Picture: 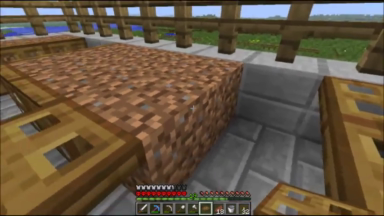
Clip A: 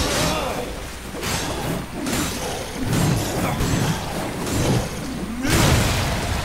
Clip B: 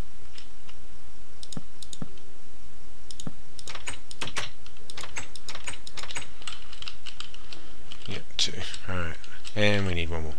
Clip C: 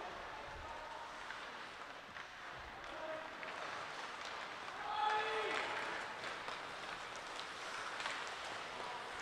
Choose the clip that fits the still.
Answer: B